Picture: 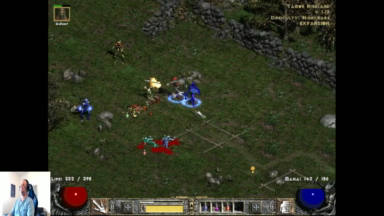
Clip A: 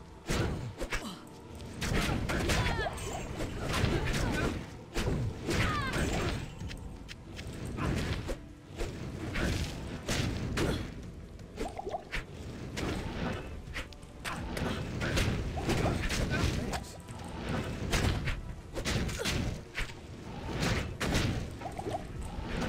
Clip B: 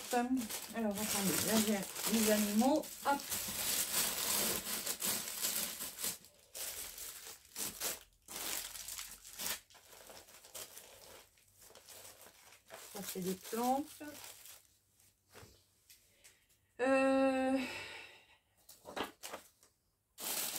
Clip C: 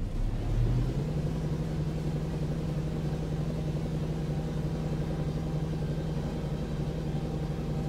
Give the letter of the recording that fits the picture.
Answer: A